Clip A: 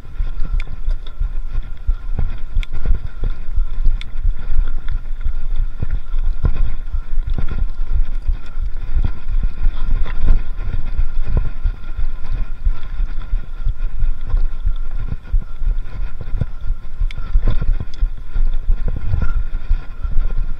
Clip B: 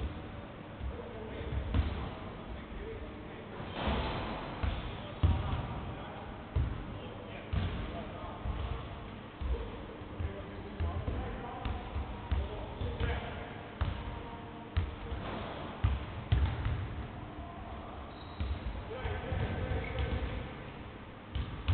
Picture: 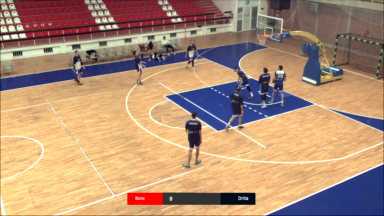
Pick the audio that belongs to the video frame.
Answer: B